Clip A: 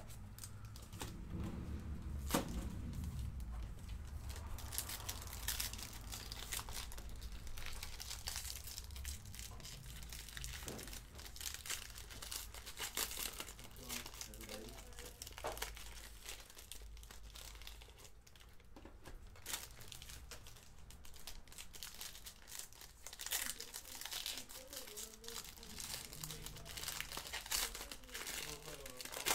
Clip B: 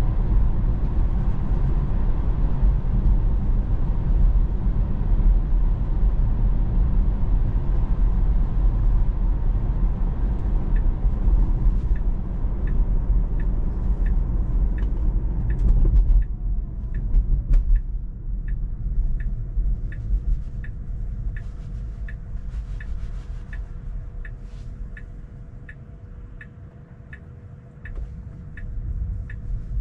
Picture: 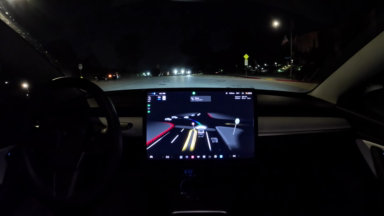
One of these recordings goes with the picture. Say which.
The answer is B